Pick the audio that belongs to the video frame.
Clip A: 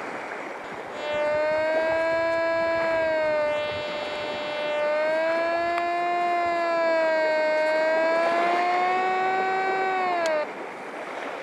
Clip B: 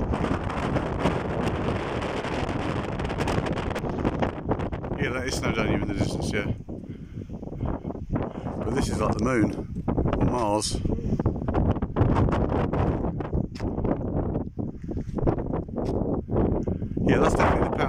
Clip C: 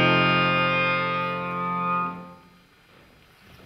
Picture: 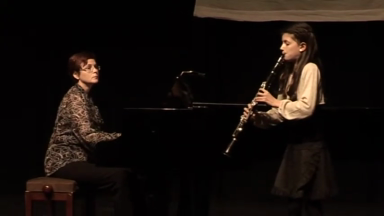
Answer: C